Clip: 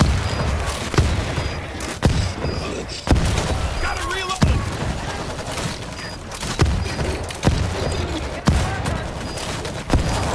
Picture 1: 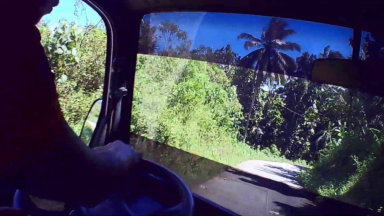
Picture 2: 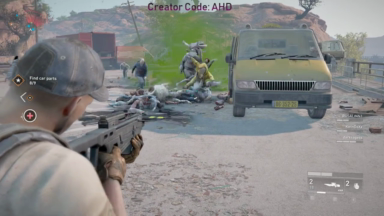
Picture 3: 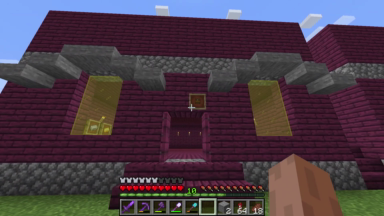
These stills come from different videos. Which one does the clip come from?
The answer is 2